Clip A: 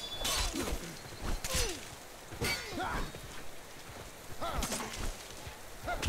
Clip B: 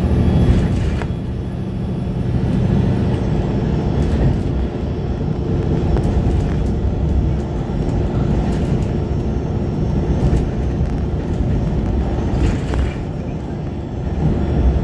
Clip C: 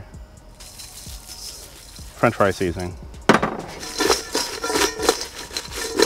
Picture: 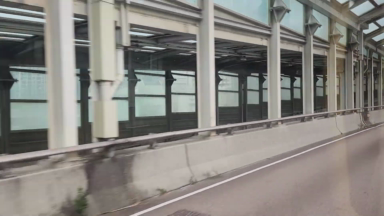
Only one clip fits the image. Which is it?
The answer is B